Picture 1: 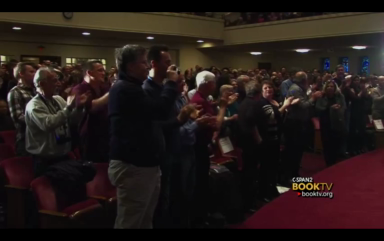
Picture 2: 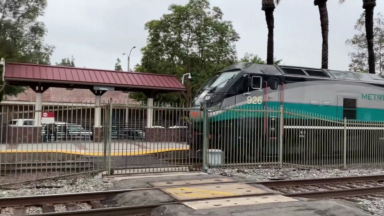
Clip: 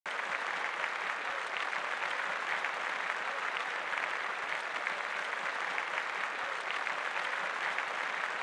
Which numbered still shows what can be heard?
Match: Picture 1